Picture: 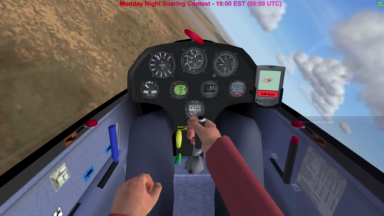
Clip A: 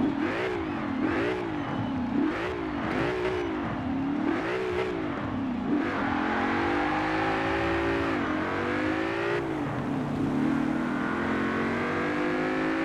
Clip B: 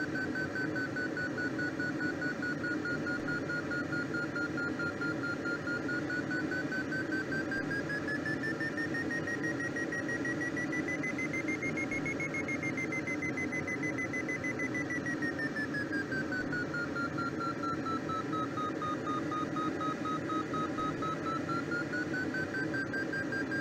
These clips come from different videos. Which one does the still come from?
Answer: B